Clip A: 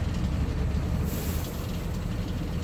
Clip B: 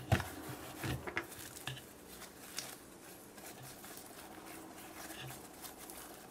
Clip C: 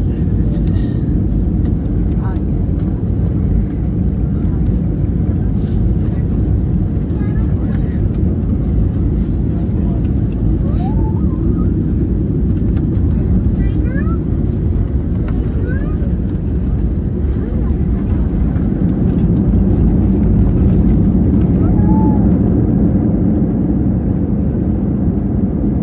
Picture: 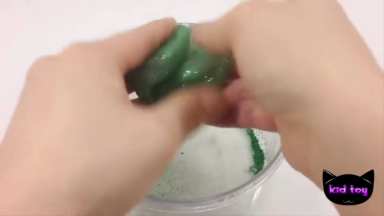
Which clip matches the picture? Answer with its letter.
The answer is B